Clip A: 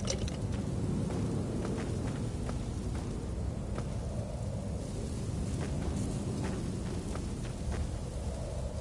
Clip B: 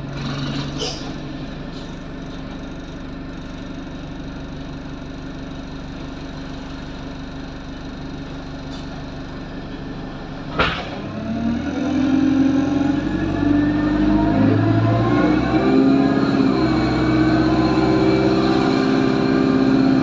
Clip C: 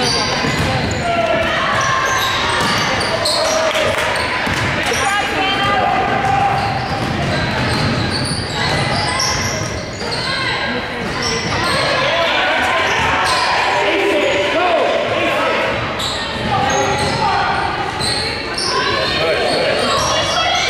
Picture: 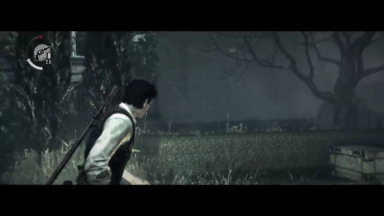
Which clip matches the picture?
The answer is A